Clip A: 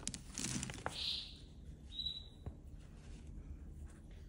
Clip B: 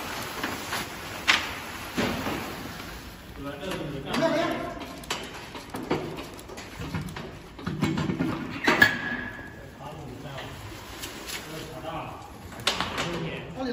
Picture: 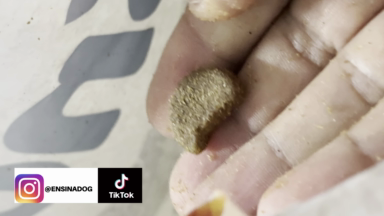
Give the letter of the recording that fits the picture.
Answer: A